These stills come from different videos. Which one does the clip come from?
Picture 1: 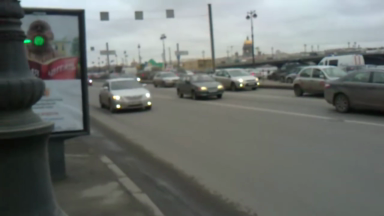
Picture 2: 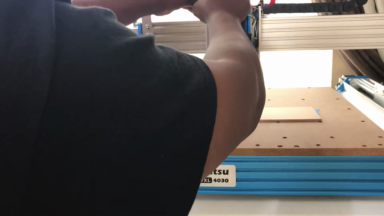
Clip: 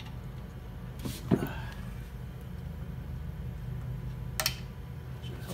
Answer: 2